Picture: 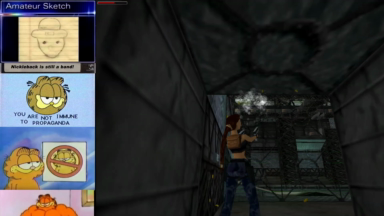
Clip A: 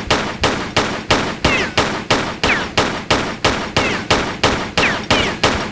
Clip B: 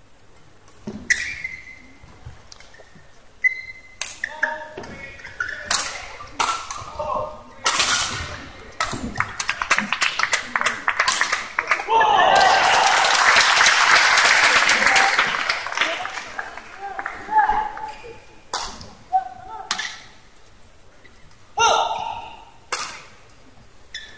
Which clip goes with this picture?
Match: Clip A